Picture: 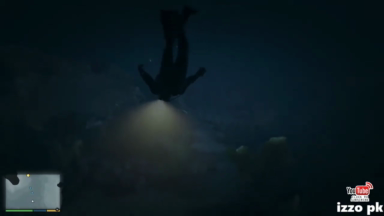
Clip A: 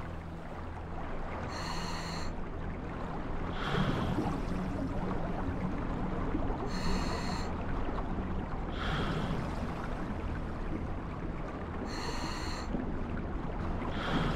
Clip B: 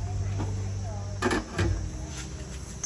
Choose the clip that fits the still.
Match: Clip A